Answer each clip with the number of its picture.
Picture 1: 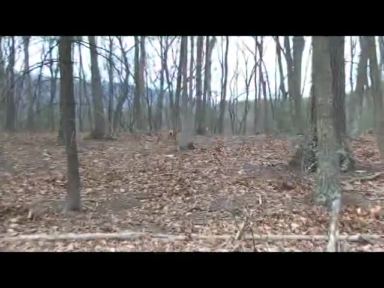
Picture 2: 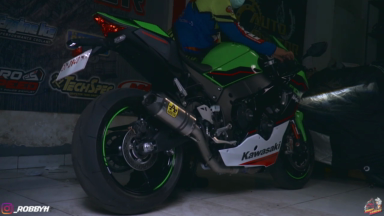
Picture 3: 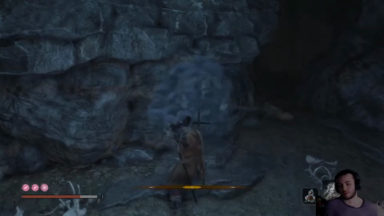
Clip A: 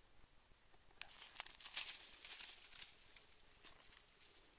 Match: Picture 1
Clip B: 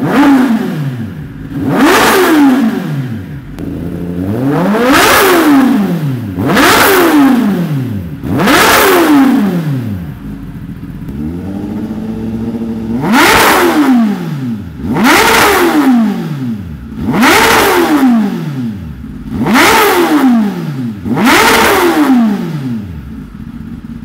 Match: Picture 2